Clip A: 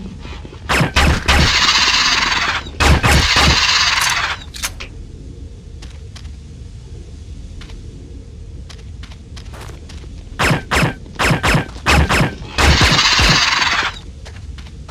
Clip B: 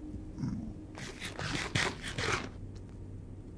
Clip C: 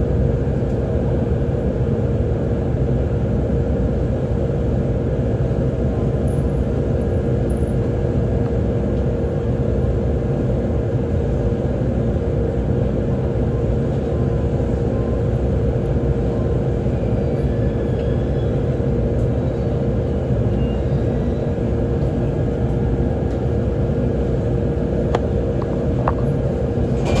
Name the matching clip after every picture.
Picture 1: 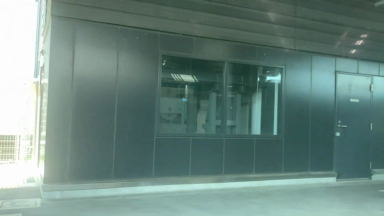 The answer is C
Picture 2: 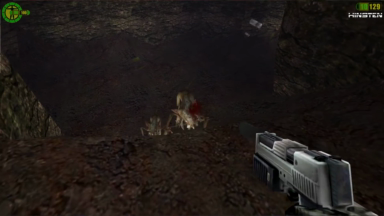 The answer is A